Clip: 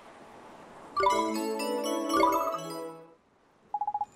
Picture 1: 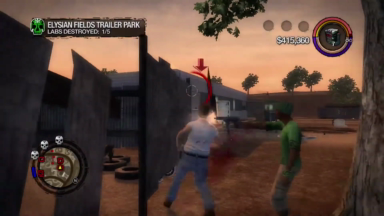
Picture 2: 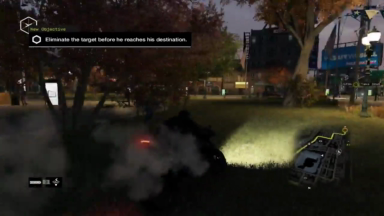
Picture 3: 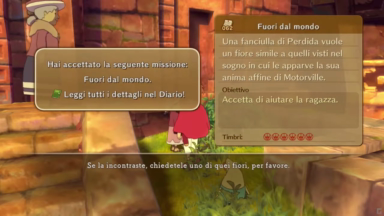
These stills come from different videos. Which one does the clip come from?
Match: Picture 3